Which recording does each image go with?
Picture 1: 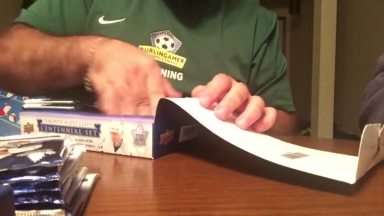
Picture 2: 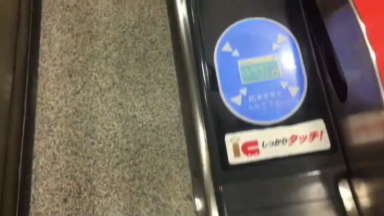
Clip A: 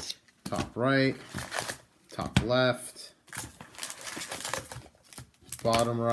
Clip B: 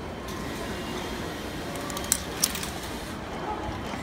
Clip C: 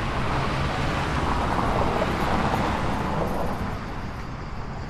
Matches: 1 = A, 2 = B